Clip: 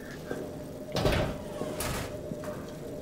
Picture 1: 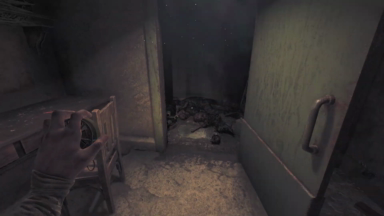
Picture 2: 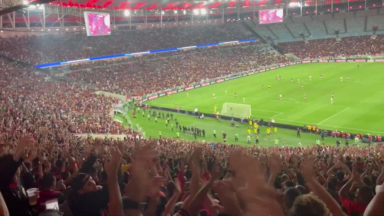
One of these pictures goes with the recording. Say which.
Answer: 1